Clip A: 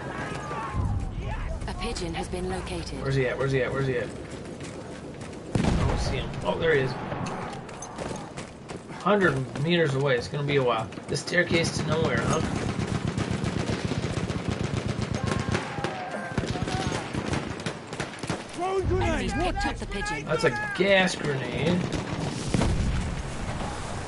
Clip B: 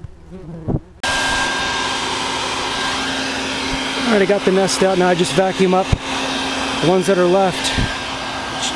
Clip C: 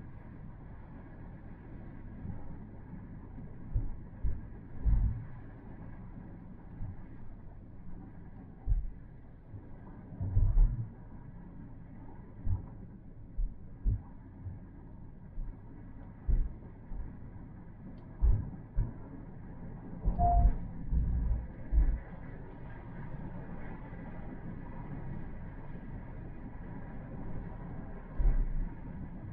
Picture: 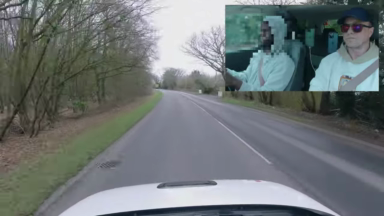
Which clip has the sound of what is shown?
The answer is C